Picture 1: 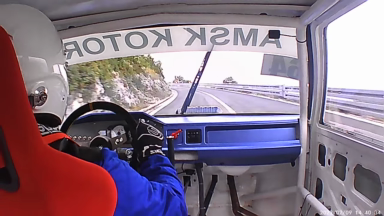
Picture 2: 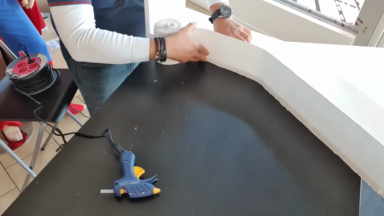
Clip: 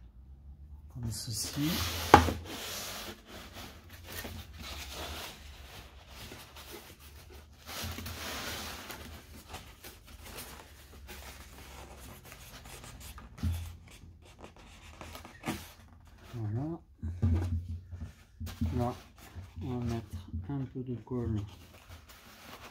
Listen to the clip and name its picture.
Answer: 2